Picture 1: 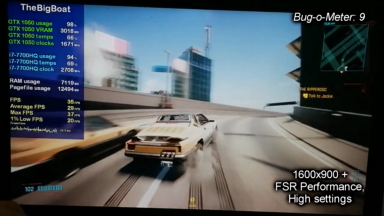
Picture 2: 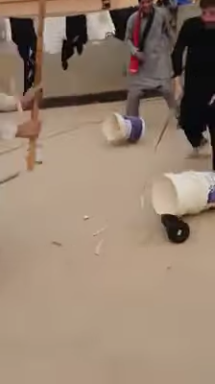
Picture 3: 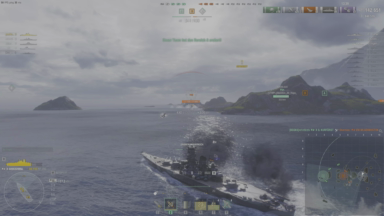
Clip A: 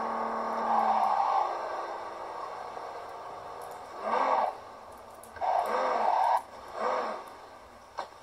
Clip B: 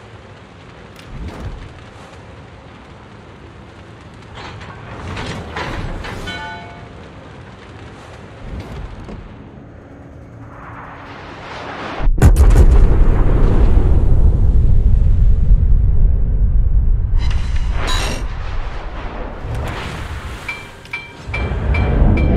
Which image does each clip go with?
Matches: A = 1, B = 3